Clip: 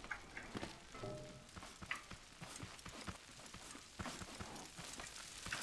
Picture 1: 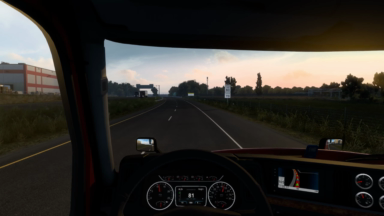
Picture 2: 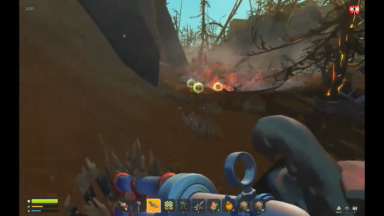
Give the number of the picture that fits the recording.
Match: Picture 2